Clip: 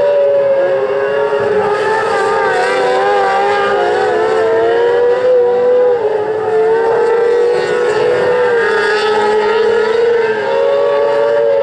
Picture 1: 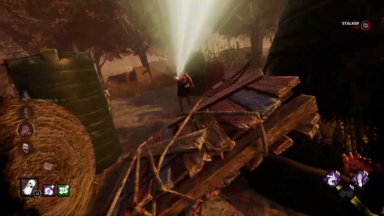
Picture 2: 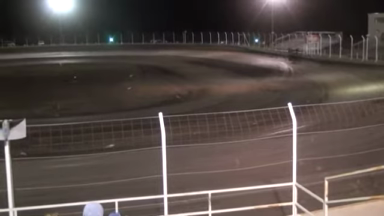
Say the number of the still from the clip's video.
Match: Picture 2